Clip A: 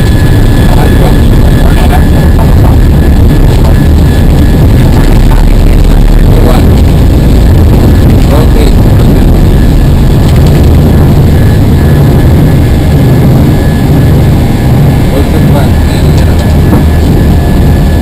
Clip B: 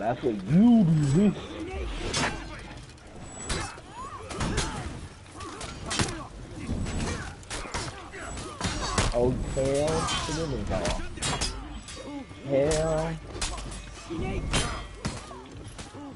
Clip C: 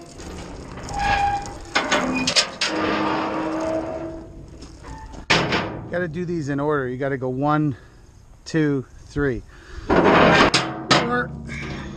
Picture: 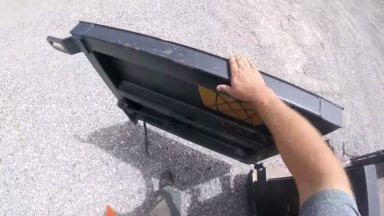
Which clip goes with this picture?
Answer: C